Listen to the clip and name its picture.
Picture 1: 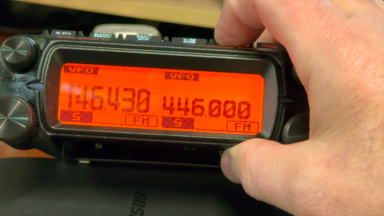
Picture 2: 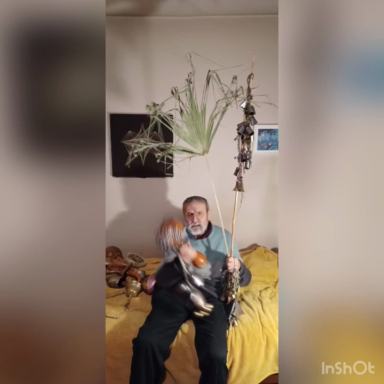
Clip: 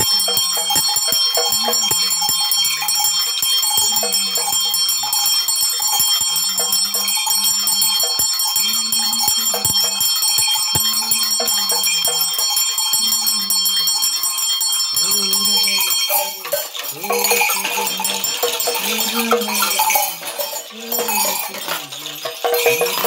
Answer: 2